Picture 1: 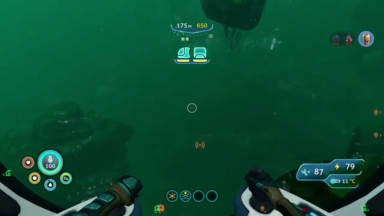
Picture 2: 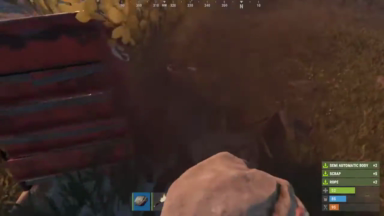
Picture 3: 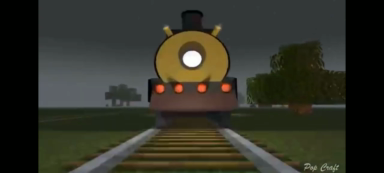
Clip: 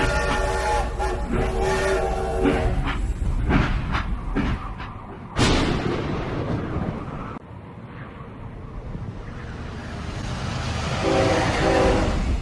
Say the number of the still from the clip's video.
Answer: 3